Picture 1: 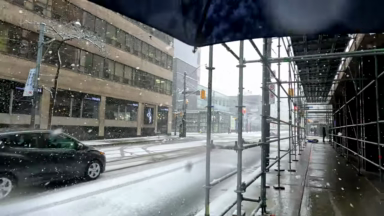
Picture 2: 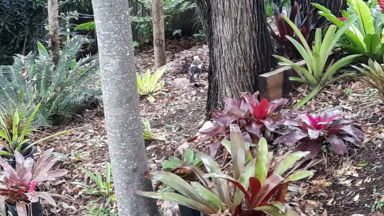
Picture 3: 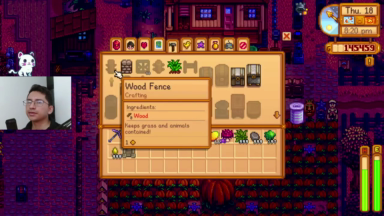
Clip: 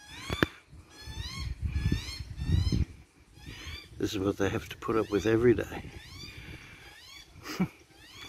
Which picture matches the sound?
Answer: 2